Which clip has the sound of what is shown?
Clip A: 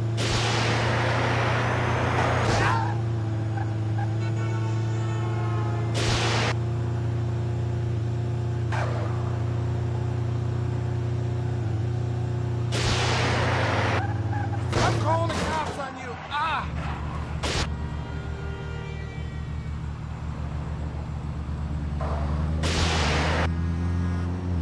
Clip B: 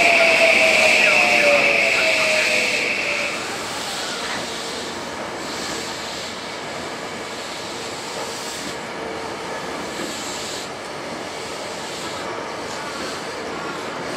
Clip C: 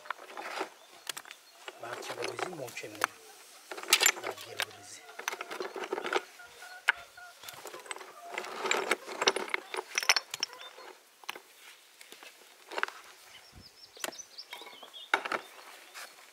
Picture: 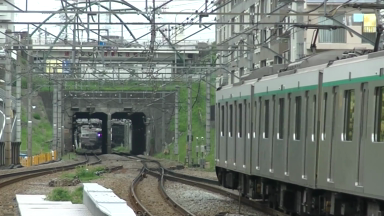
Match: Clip B